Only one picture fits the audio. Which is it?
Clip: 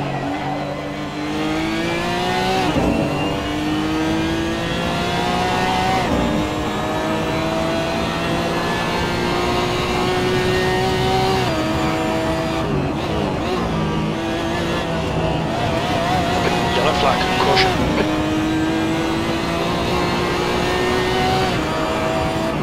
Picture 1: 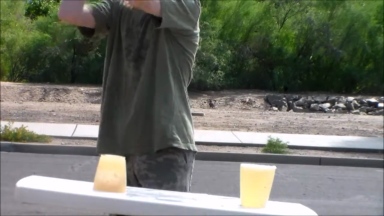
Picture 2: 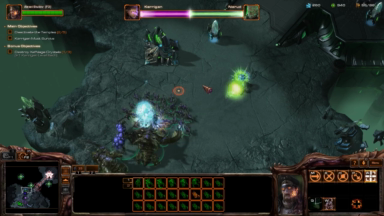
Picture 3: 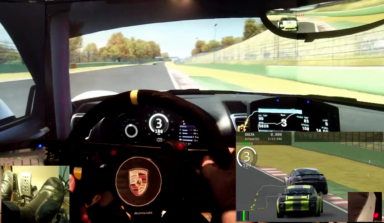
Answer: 3